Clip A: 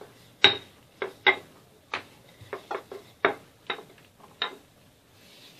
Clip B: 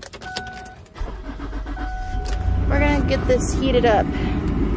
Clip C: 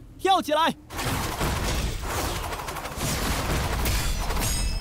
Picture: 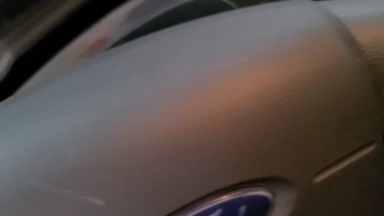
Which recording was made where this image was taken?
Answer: B